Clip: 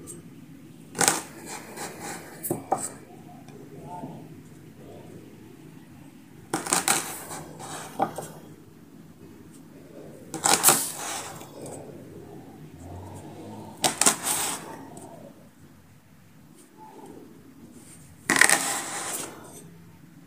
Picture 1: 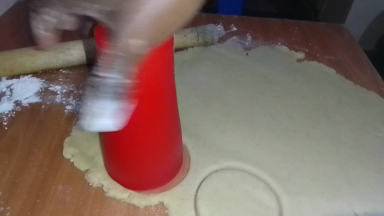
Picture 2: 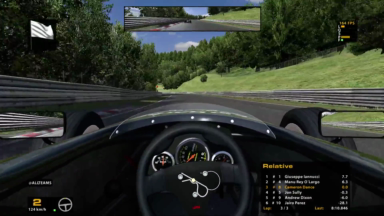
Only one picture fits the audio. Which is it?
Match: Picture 1